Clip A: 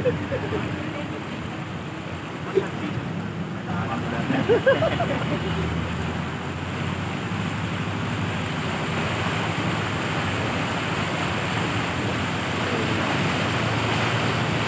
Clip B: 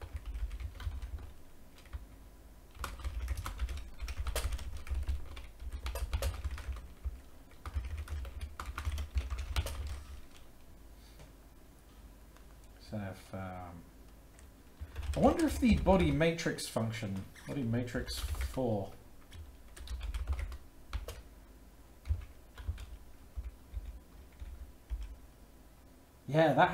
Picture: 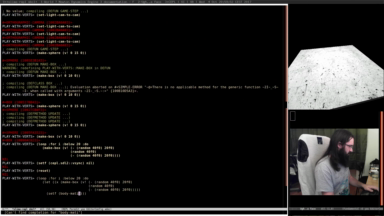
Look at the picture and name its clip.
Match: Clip B